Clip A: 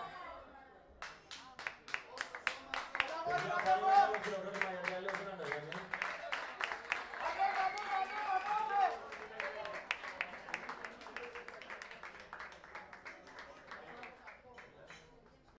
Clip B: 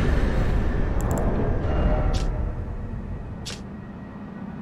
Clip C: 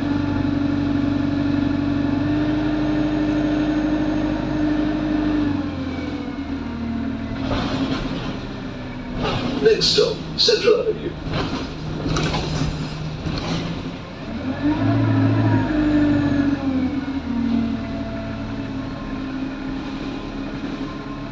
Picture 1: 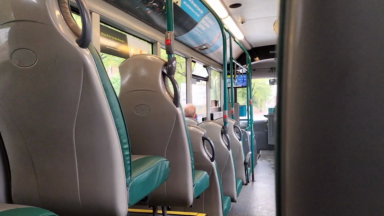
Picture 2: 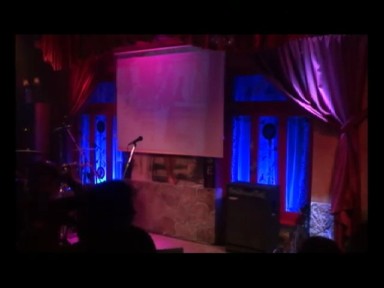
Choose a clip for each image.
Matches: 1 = C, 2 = A